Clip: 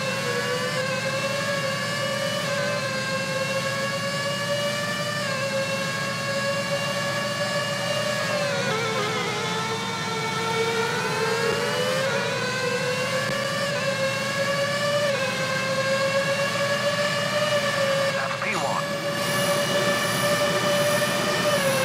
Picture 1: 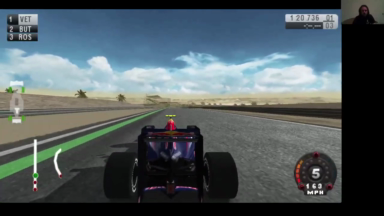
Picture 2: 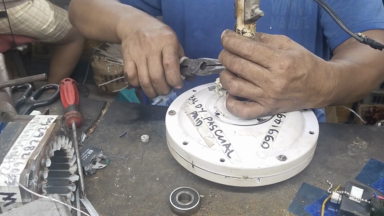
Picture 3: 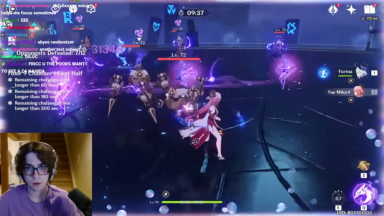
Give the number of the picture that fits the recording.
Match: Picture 1